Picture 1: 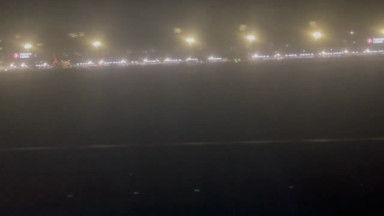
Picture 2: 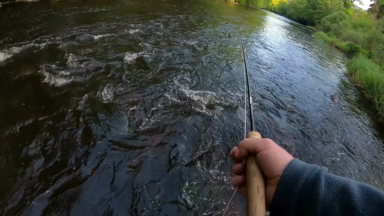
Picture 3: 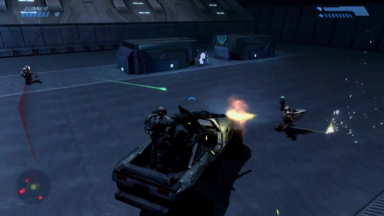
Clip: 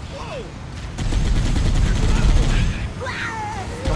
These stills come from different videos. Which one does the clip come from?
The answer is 3